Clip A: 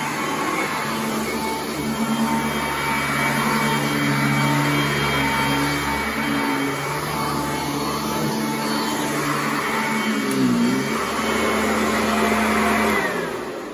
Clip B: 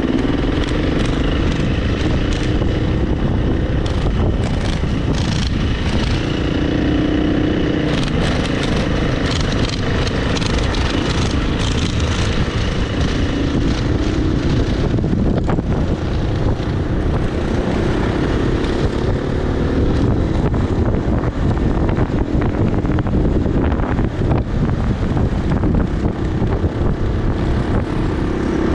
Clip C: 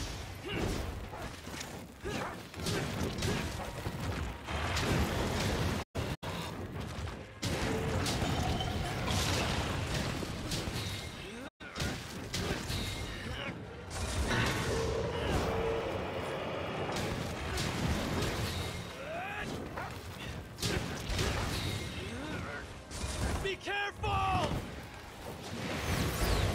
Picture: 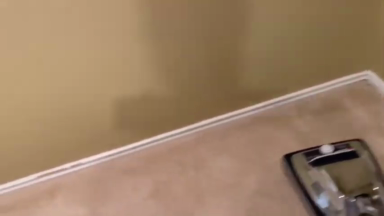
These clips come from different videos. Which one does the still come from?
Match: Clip A